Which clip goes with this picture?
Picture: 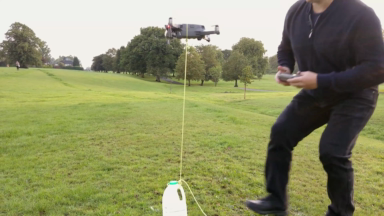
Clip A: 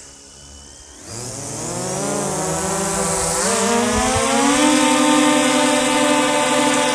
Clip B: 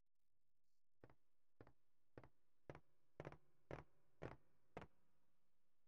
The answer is A